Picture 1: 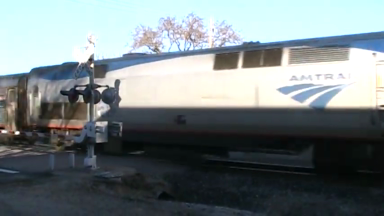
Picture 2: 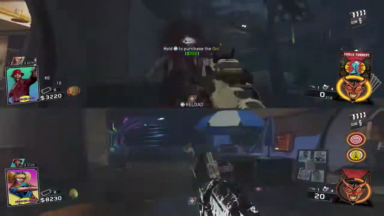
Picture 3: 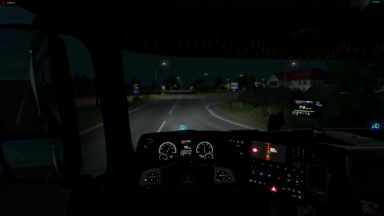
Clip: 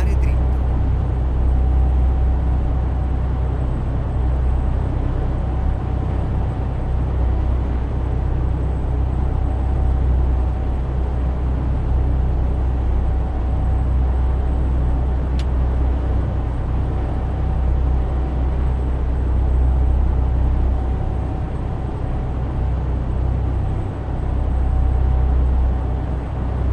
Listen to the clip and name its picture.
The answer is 3